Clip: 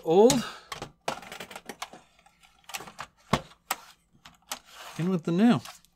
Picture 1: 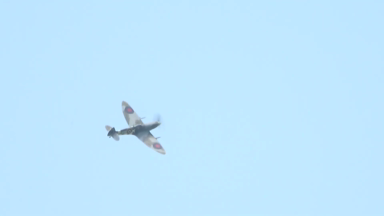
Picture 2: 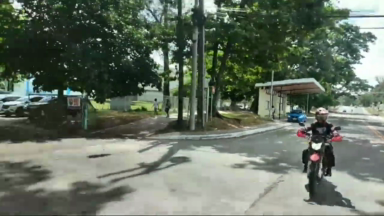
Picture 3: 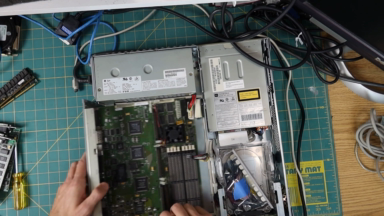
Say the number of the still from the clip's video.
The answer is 3